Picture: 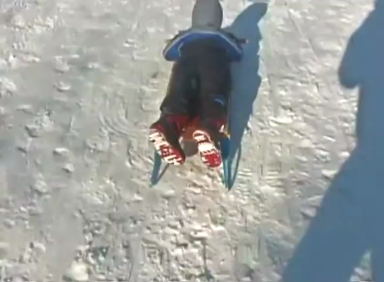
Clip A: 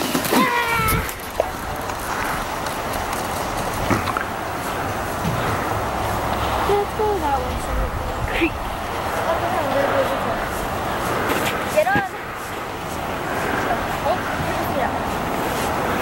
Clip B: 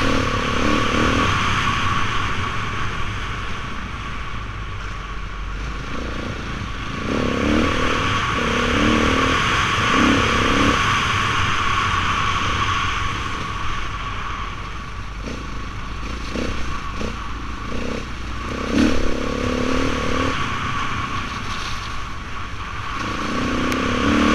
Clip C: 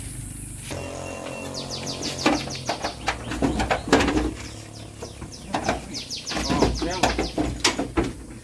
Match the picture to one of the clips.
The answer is A